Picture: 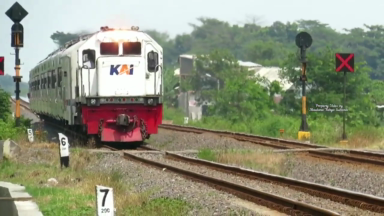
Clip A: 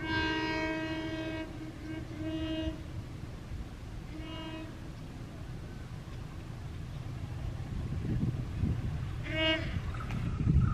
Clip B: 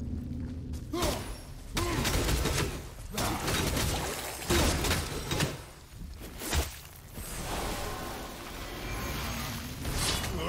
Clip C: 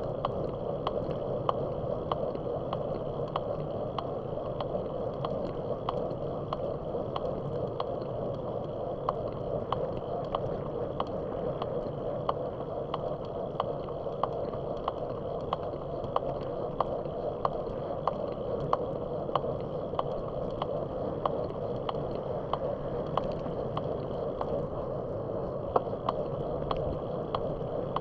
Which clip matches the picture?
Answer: A